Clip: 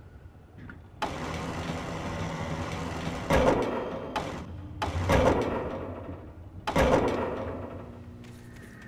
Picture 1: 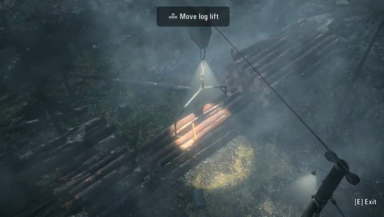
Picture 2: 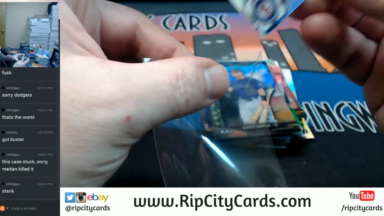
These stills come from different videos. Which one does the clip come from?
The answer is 1